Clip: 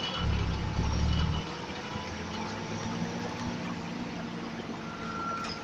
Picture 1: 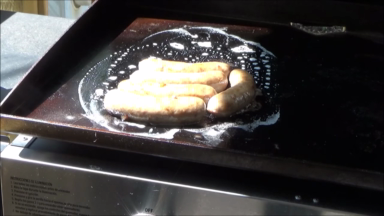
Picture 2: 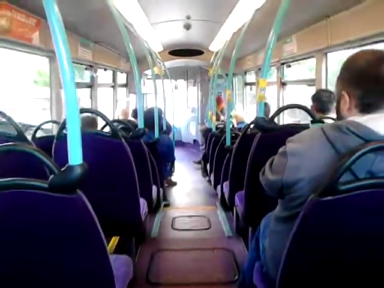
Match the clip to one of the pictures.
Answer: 2